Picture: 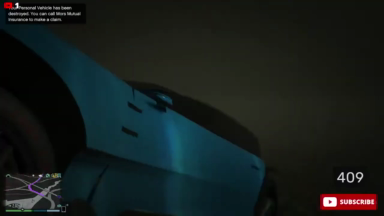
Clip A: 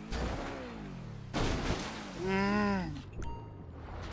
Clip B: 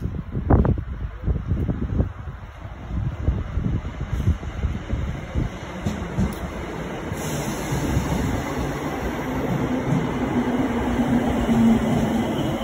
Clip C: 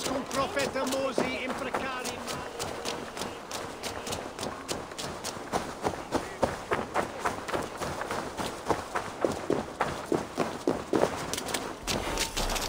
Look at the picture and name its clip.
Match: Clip A